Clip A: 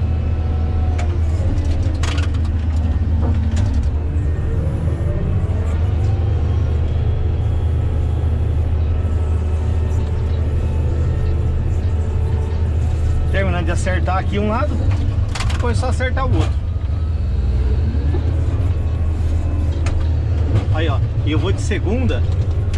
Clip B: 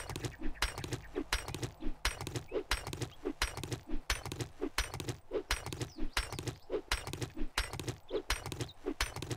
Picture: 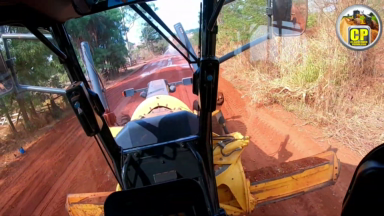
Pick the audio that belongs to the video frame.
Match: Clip A